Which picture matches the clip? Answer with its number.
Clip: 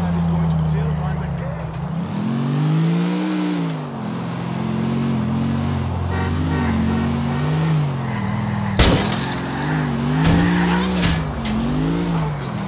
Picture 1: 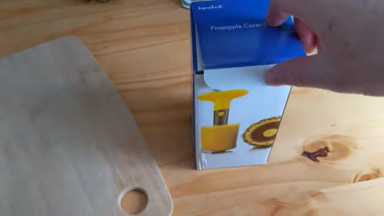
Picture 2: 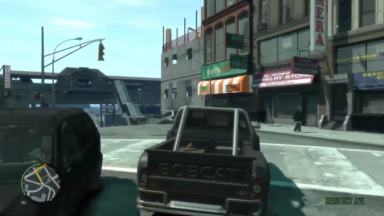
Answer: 2